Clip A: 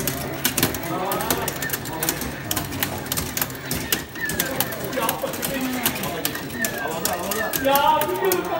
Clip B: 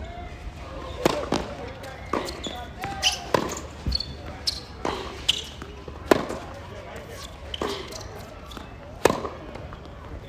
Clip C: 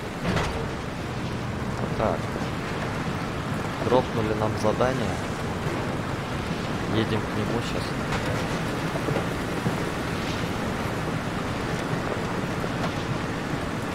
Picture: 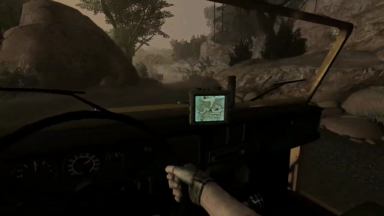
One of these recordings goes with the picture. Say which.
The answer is C